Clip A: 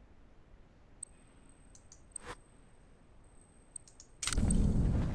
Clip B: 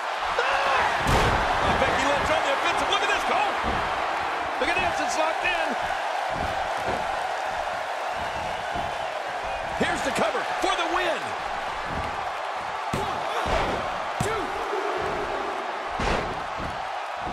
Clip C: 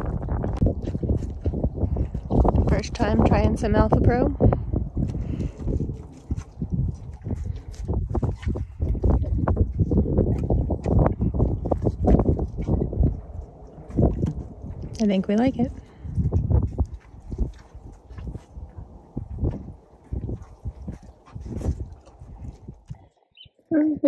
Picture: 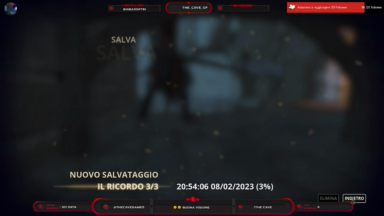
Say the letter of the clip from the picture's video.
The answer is A